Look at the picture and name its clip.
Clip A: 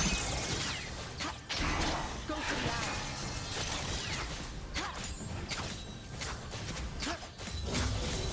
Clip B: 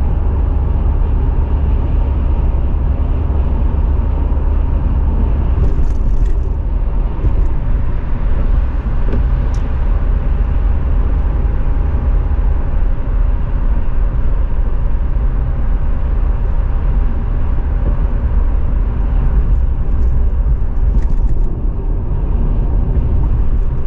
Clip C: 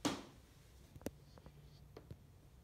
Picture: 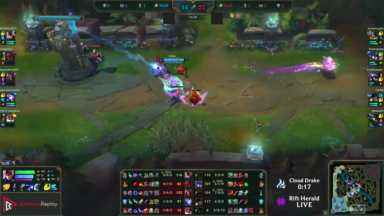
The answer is A